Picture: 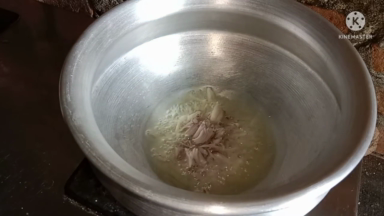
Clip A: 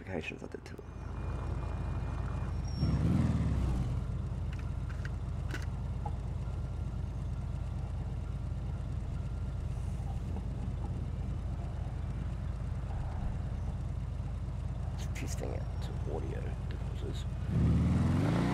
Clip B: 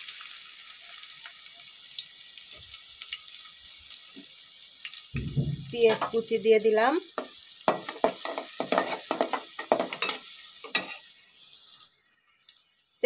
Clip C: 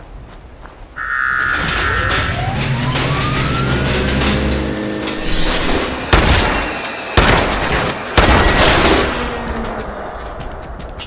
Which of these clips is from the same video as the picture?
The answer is B